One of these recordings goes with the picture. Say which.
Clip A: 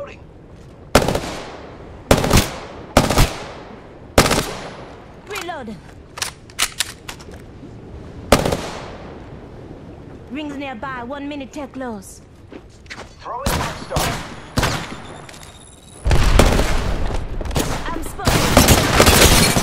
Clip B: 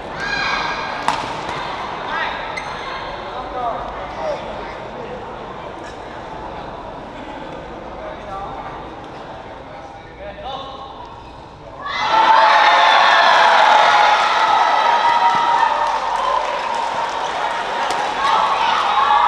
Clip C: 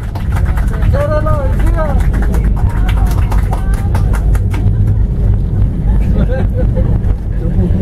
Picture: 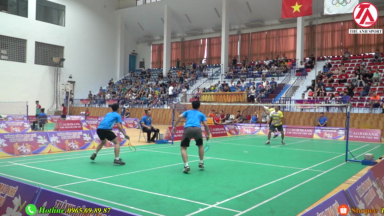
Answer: B